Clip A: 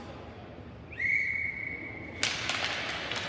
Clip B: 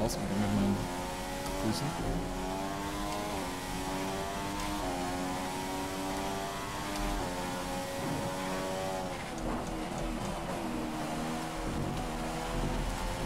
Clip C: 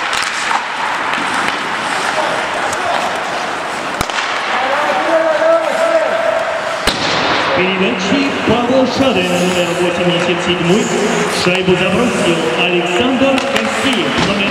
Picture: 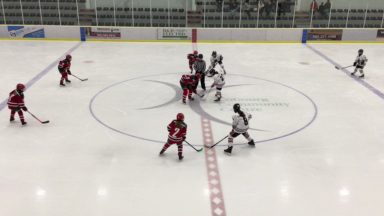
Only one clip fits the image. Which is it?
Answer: A